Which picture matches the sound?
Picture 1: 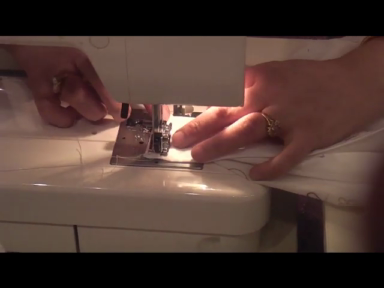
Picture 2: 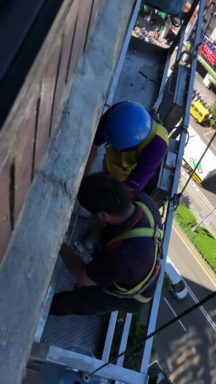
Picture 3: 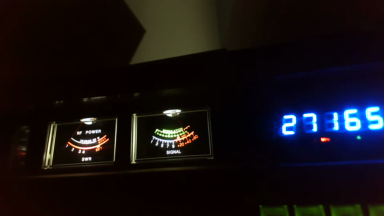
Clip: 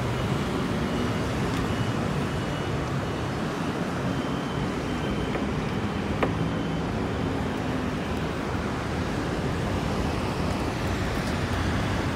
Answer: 2